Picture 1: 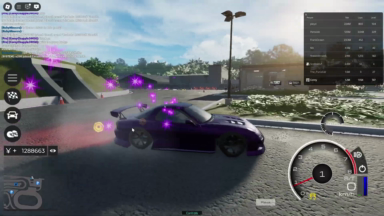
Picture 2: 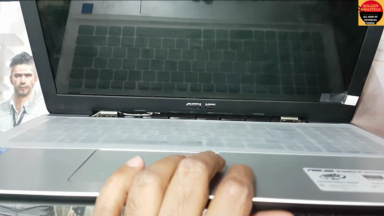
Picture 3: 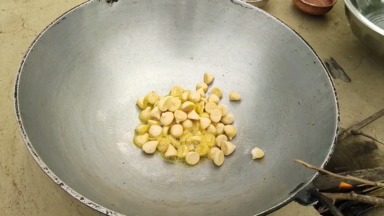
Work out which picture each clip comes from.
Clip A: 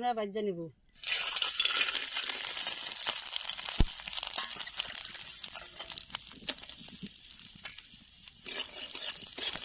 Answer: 3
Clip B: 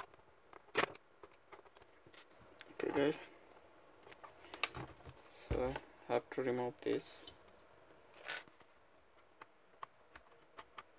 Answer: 2